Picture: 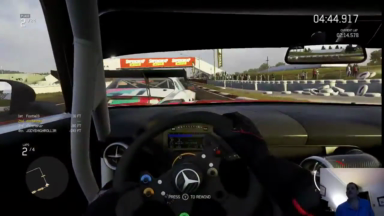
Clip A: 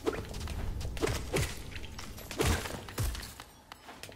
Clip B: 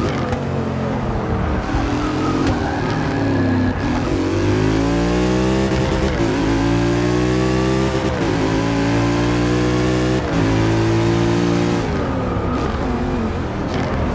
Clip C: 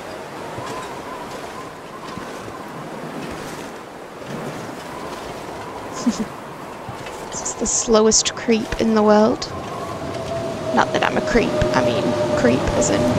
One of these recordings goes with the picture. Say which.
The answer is B